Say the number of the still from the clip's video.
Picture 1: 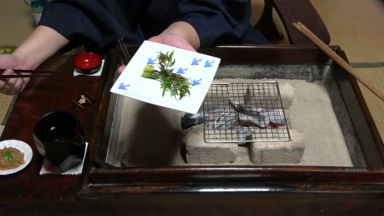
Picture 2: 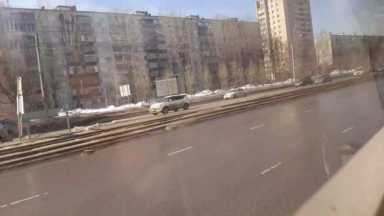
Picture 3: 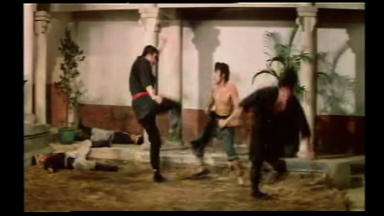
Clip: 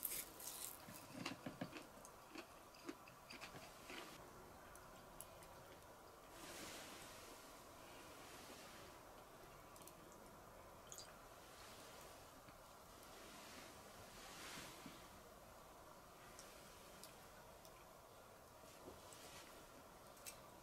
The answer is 1